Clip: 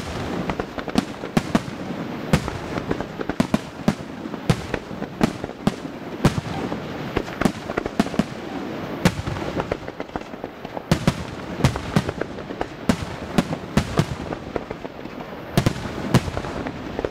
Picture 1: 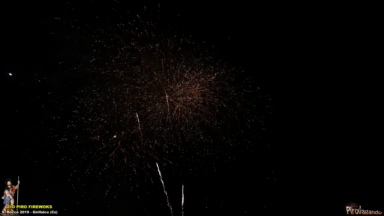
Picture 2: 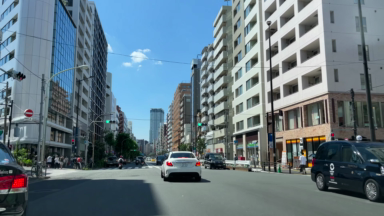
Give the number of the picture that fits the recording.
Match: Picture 1